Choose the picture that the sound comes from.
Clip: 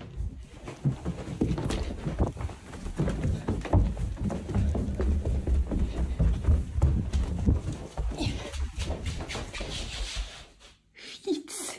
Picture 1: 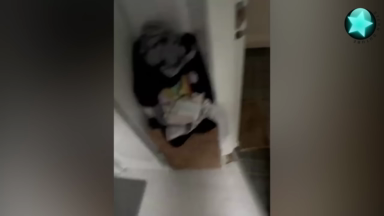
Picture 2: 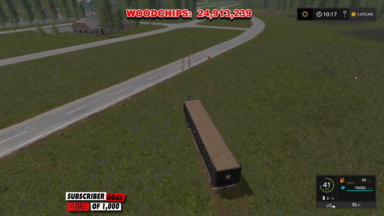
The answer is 1